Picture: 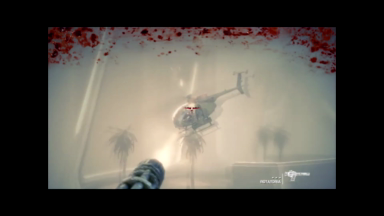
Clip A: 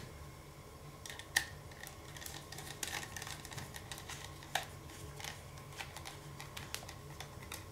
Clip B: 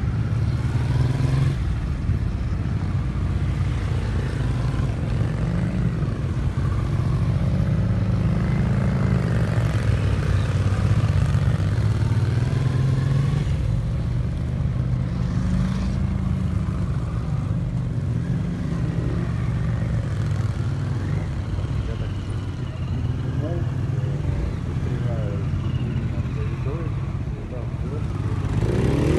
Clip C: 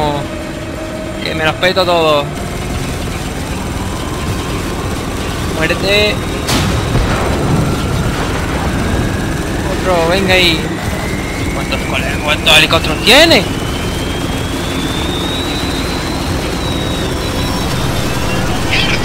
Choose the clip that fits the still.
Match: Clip C